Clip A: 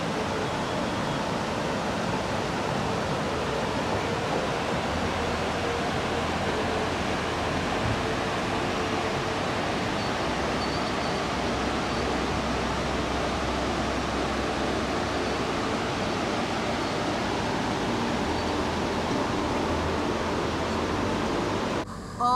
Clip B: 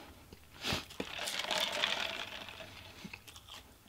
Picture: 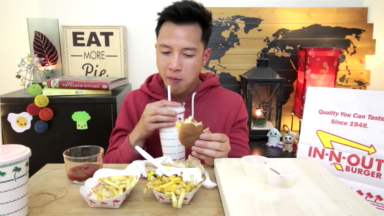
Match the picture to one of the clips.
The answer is B